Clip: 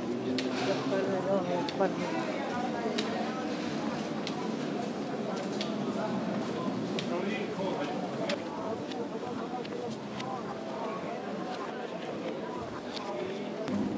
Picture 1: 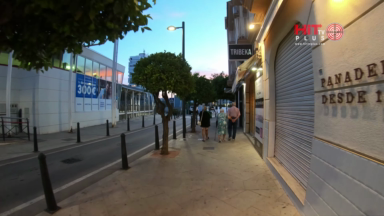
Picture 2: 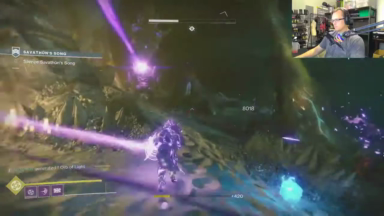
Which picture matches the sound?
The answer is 1